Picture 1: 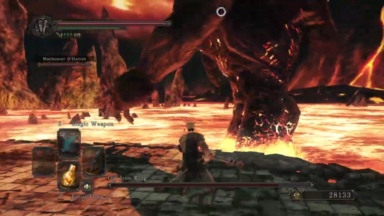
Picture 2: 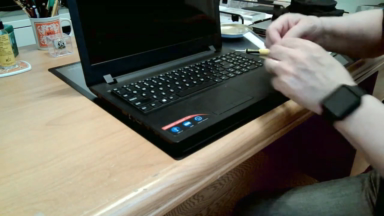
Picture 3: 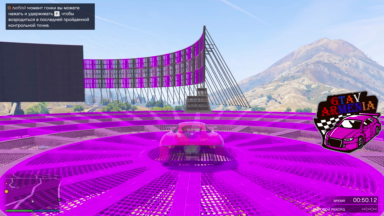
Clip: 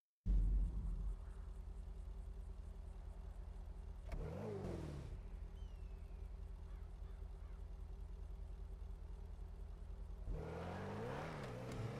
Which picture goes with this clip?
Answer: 3